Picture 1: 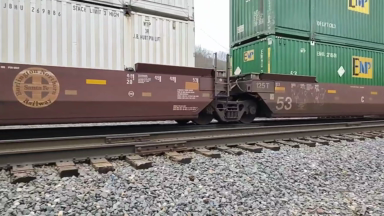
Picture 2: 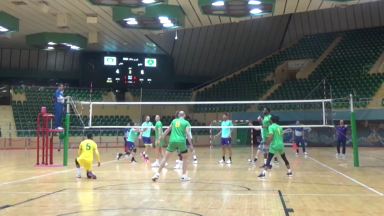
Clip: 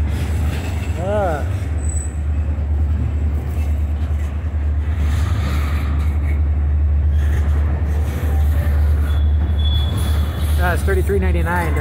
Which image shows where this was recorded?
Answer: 1